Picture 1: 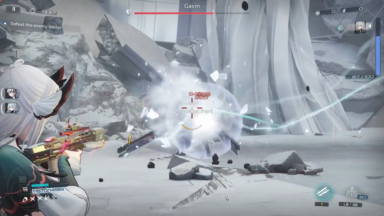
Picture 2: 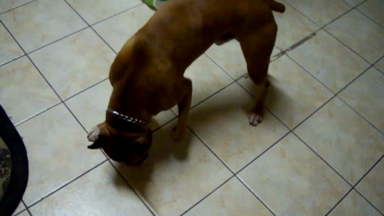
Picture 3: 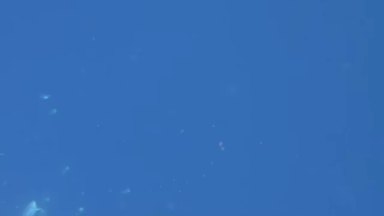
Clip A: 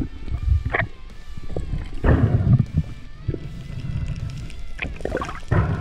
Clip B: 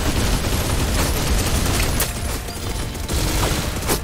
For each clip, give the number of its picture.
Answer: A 3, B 1